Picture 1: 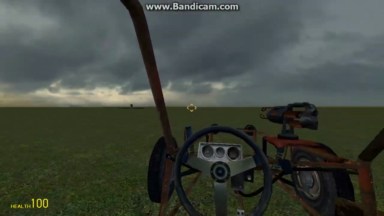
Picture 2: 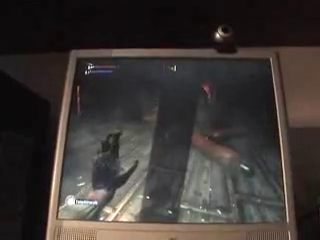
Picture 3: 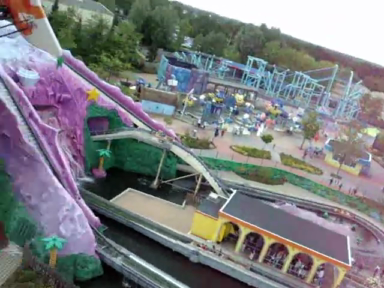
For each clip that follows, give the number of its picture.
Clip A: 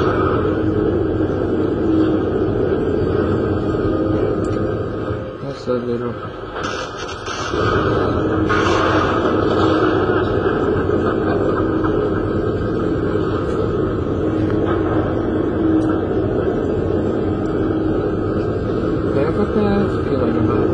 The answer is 2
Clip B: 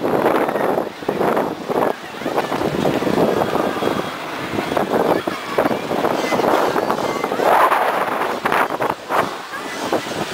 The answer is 3